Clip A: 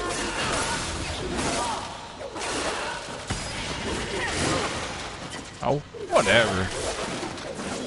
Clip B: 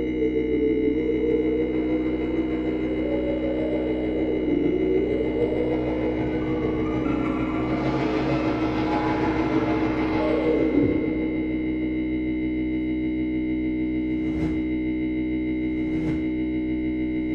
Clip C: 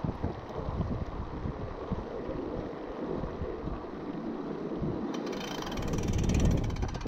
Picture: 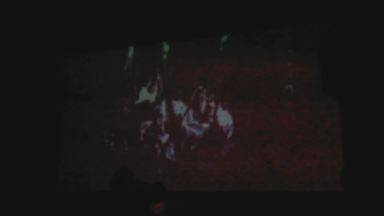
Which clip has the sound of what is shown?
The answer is B